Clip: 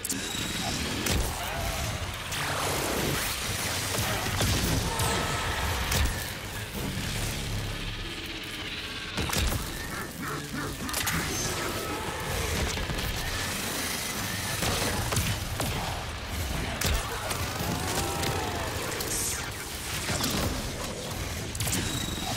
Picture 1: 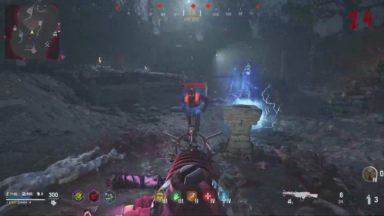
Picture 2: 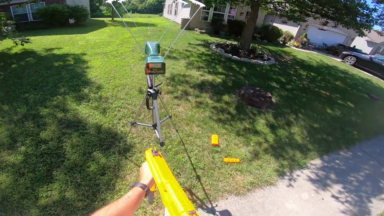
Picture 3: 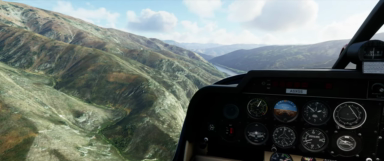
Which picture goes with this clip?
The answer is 1